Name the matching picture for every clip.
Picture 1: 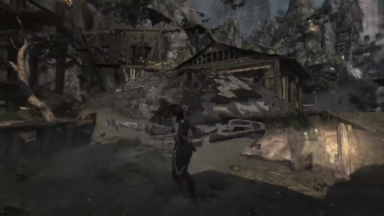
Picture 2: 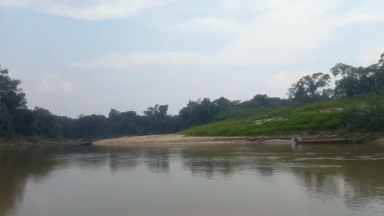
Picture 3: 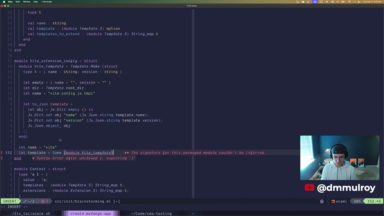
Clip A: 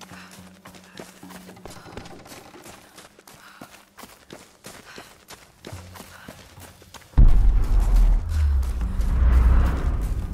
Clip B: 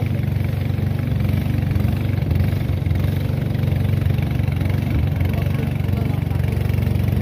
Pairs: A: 1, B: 2